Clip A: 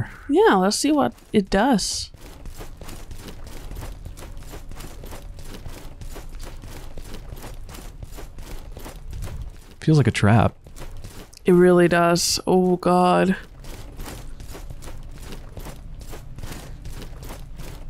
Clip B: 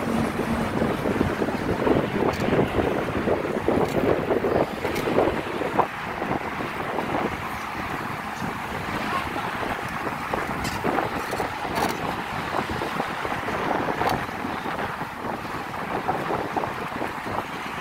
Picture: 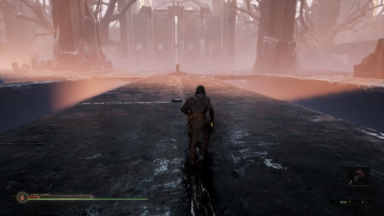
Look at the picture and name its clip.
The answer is A